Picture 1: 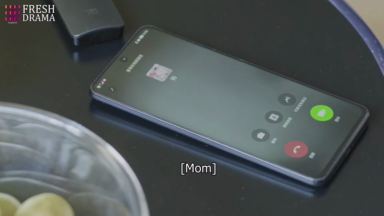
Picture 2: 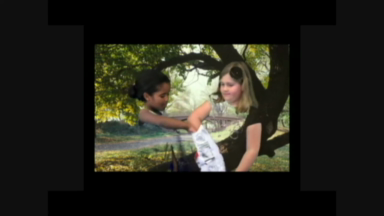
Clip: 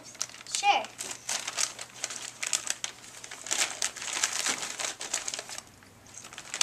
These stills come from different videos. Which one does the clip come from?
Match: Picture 2